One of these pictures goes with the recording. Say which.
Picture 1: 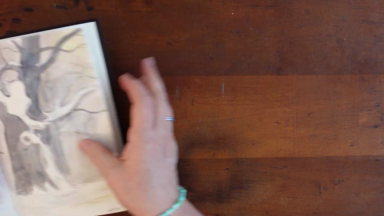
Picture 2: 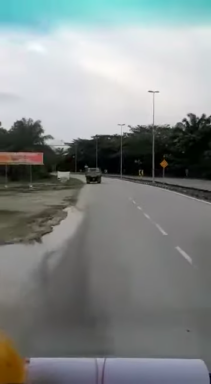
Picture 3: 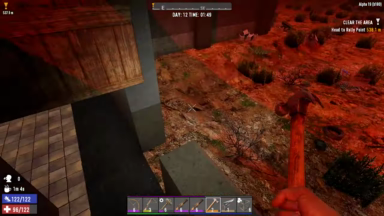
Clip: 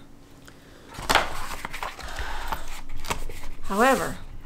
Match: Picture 1